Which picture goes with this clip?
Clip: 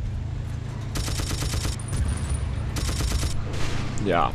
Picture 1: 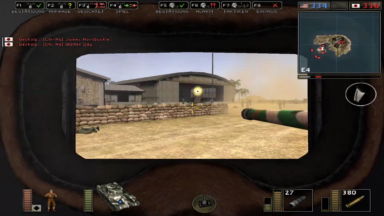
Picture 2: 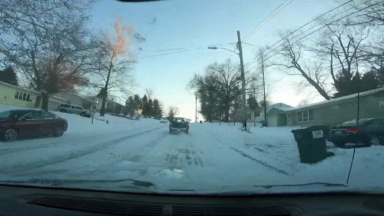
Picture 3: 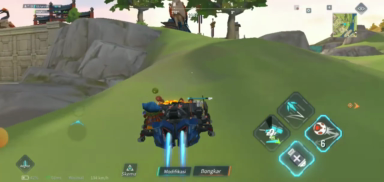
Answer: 1